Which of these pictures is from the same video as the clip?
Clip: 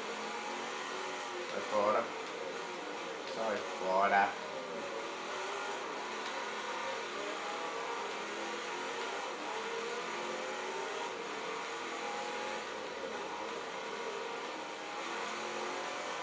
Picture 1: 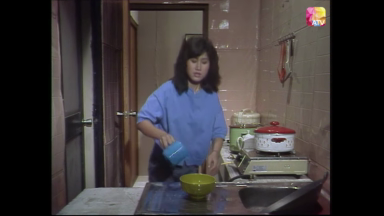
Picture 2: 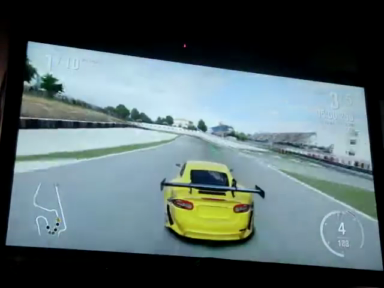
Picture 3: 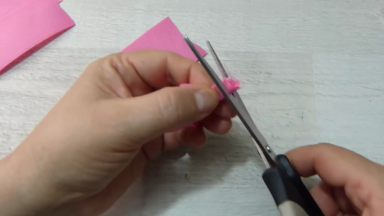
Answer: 2